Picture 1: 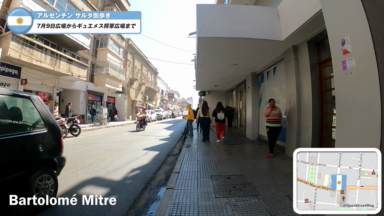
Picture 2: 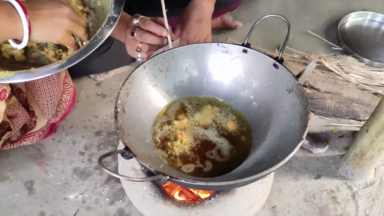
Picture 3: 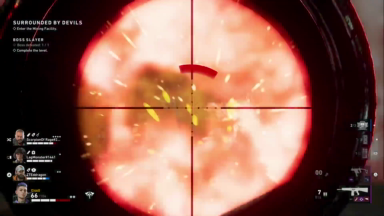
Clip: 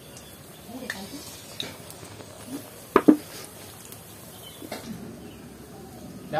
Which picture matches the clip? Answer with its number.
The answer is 2